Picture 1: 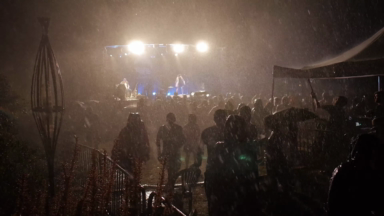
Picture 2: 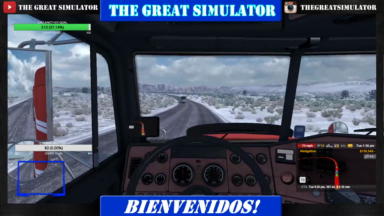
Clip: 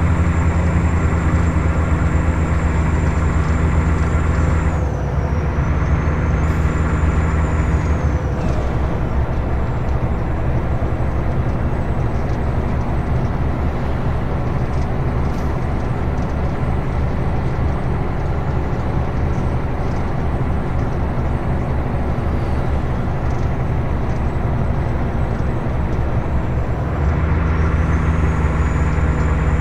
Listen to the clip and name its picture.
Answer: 2